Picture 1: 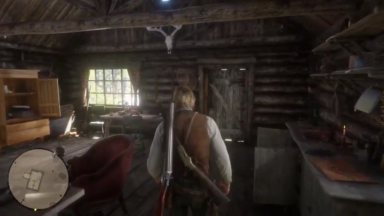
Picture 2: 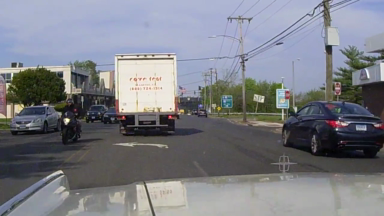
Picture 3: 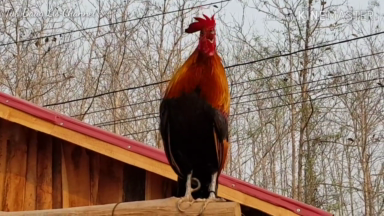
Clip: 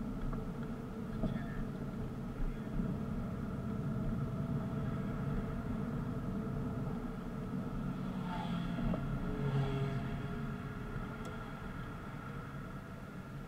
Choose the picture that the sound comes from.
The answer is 2